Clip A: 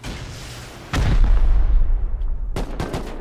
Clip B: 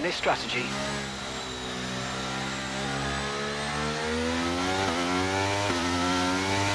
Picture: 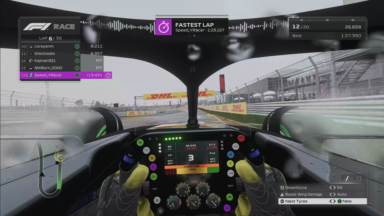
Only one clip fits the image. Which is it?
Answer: B